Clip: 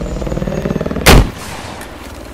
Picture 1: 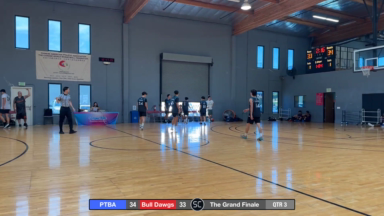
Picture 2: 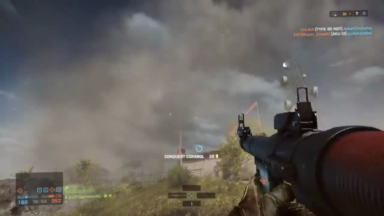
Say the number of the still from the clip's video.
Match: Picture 2